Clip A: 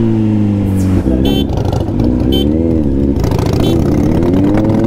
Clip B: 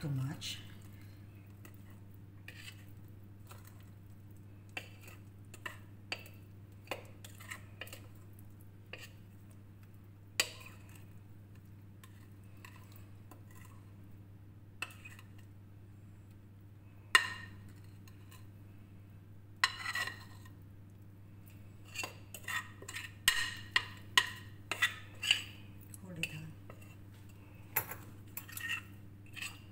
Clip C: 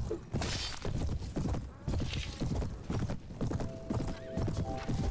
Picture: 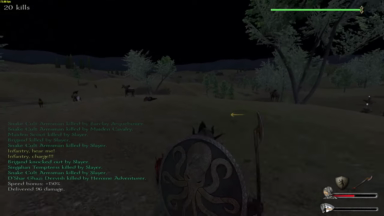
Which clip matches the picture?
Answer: C